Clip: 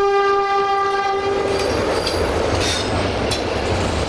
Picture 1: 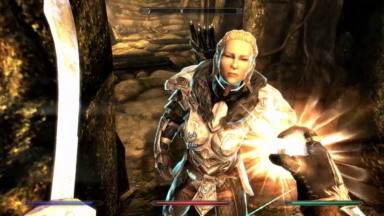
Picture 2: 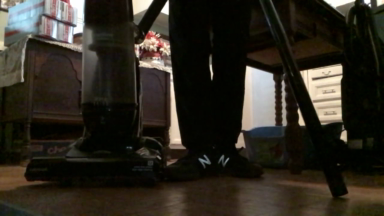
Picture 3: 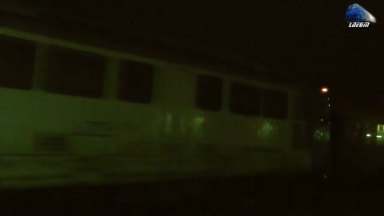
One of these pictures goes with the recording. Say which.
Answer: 3